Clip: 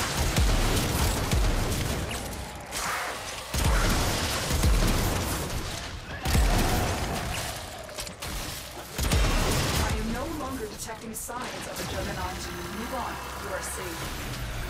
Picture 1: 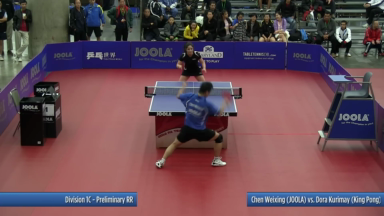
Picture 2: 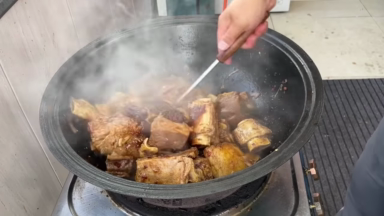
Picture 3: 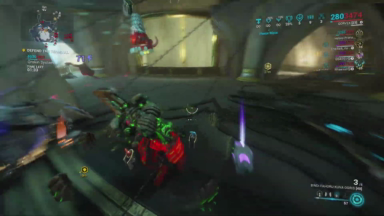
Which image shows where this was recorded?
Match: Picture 3